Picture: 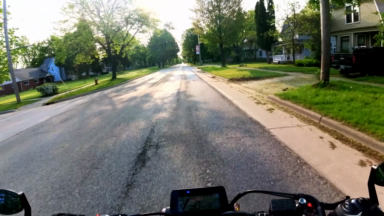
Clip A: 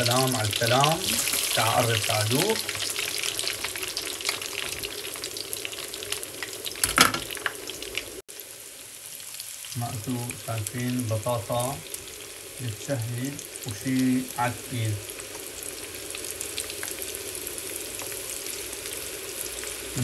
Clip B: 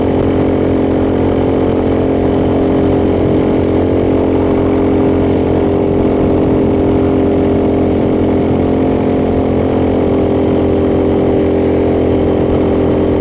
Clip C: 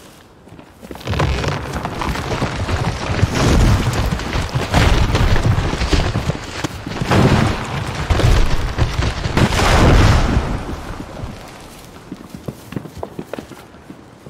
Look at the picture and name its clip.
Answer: B